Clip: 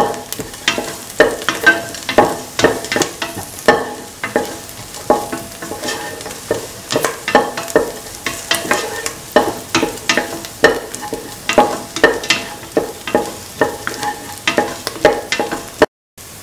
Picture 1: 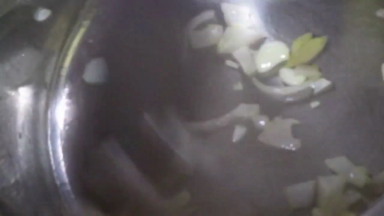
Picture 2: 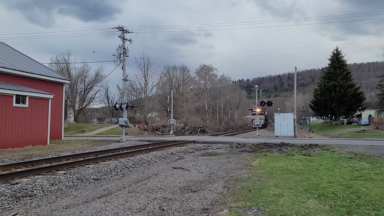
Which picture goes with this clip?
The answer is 1